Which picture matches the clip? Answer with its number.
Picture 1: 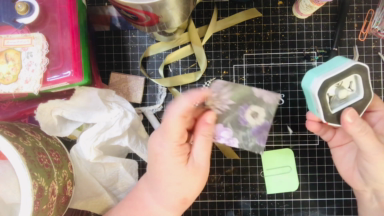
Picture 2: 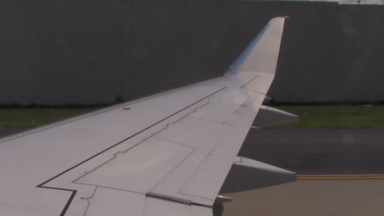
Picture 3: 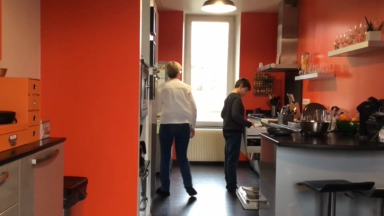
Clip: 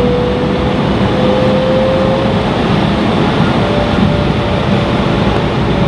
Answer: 2